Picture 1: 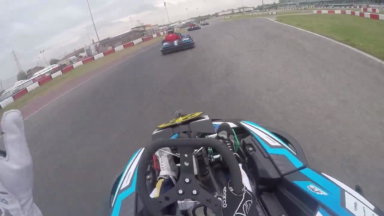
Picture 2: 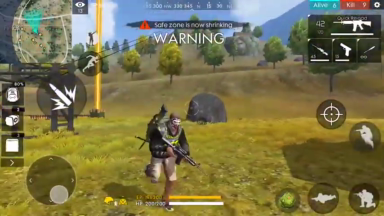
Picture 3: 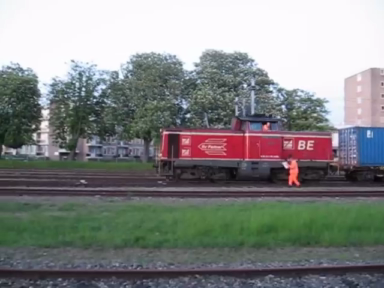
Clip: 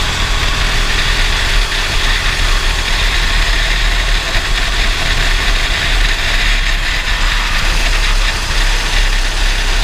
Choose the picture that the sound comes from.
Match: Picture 1